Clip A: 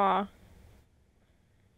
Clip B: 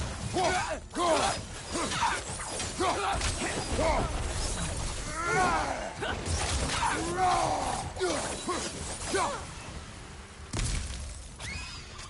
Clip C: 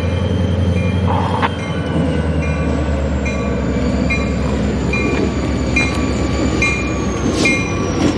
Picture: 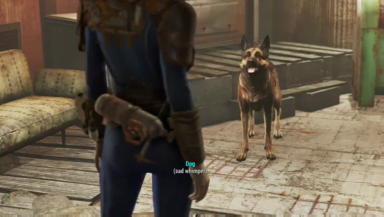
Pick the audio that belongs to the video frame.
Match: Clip A